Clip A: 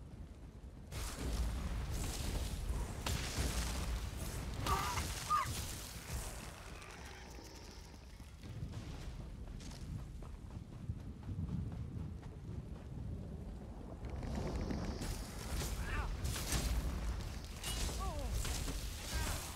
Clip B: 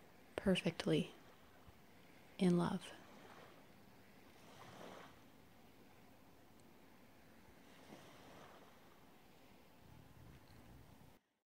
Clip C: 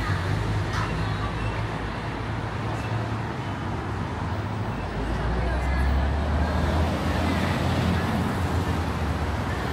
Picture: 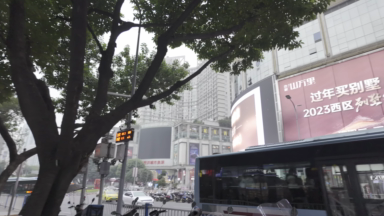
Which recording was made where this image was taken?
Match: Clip C